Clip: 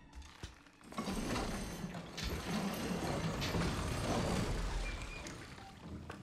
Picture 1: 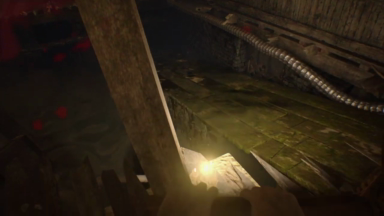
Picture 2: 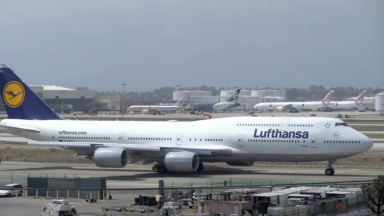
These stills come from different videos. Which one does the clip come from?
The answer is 1